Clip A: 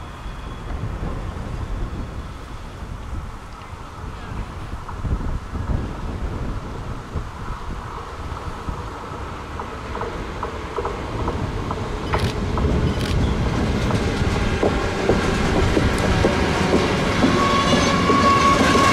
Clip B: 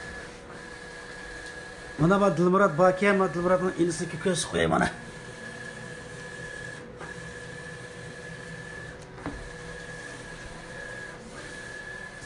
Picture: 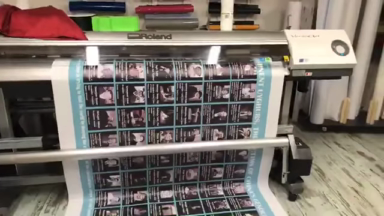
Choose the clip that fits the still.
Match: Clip B